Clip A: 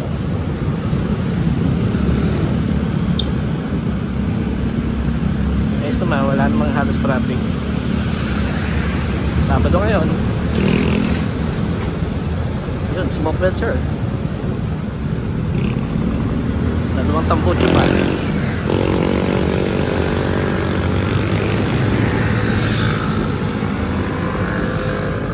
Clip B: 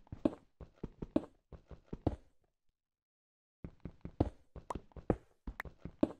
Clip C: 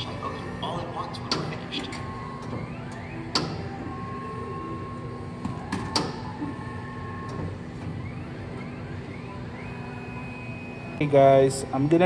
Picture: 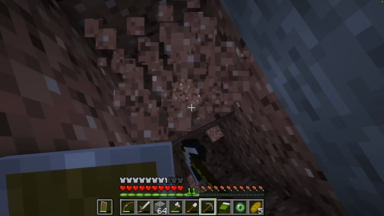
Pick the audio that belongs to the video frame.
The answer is B